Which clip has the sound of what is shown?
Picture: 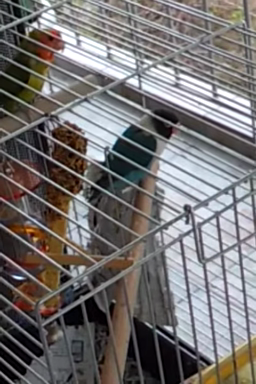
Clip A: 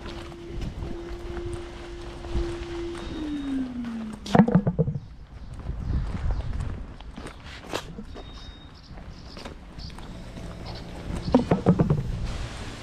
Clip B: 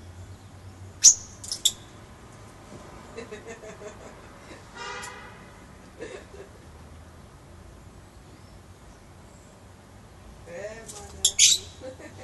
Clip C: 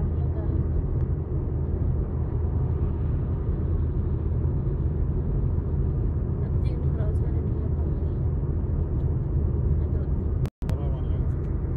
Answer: B